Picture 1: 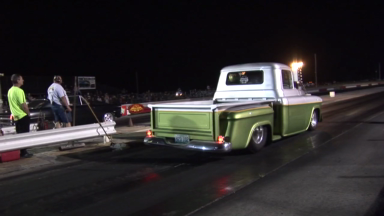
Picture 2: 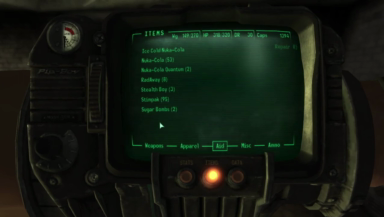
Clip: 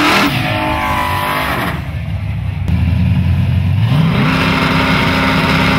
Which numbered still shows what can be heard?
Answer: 1